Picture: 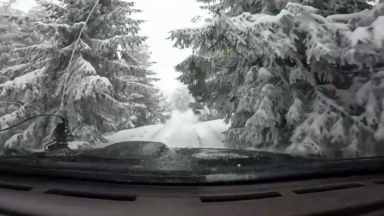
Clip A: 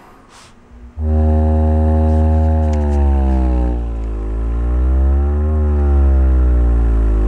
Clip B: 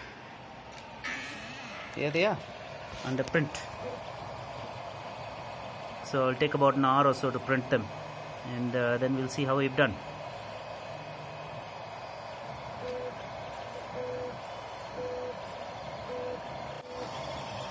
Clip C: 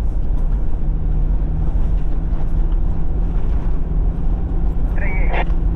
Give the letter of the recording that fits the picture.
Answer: C